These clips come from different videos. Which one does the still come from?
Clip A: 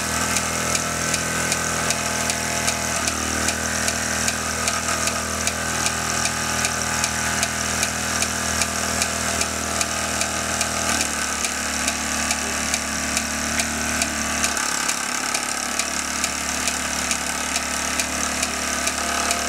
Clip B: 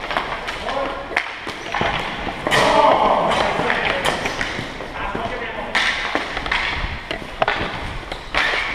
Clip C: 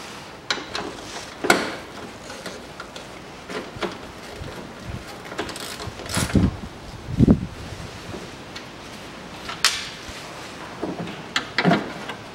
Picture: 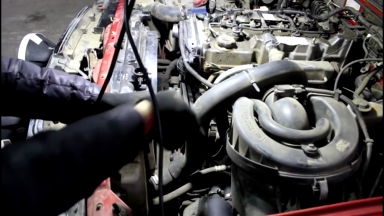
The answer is C